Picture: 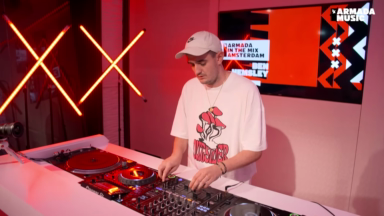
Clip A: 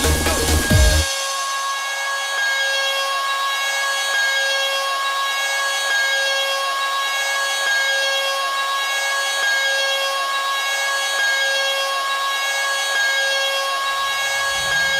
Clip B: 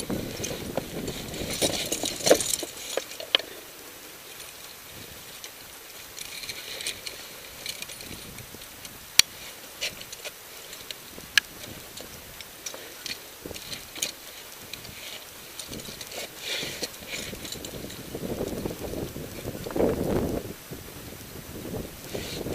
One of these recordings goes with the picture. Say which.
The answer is A